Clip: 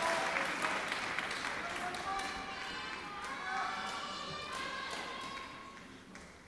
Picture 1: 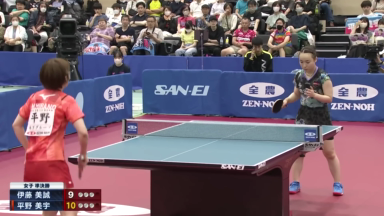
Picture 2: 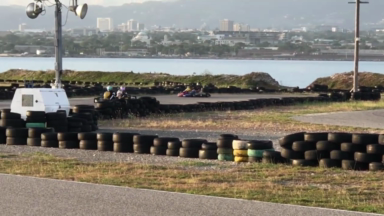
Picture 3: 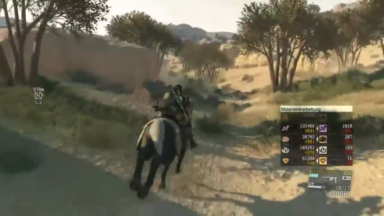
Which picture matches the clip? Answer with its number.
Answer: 1